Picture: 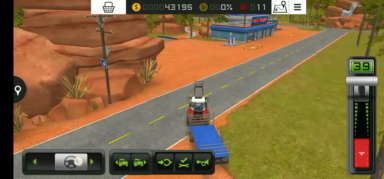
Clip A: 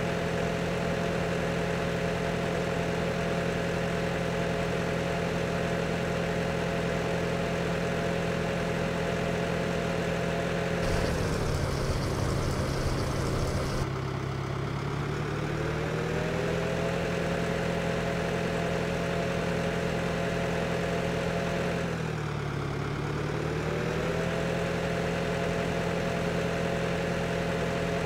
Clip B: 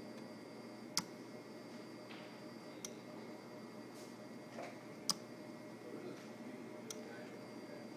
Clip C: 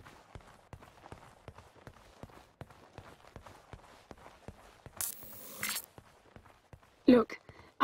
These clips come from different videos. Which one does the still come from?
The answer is A